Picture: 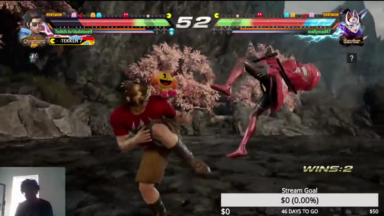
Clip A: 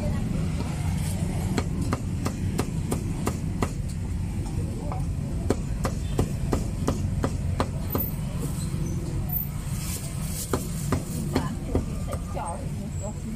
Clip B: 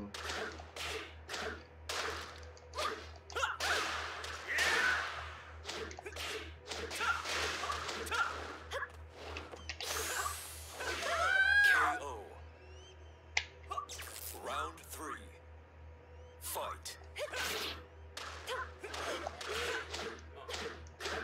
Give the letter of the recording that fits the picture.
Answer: B